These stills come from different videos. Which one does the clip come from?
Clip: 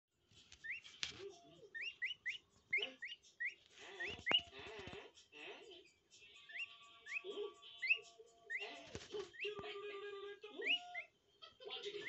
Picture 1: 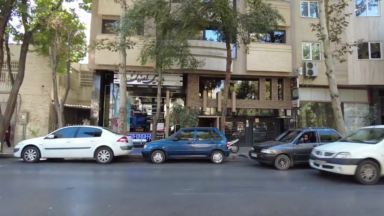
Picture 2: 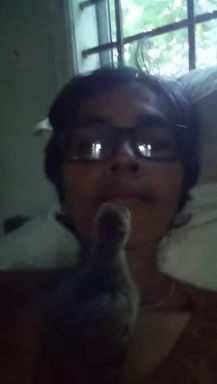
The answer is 2